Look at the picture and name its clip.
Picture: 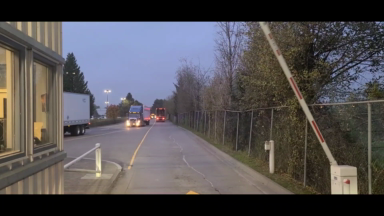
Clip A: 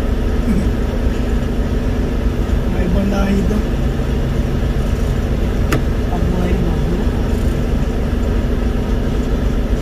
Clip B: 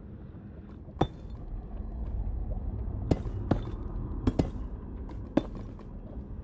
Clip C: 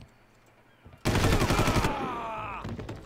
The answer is A